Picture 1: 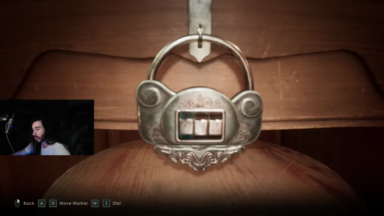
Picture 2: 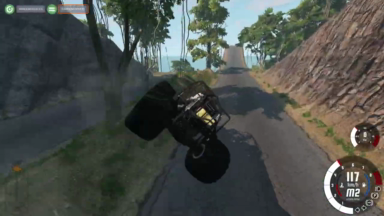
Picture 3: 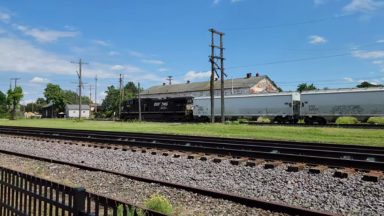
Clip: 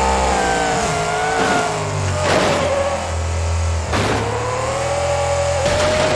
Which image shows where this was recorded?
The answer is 2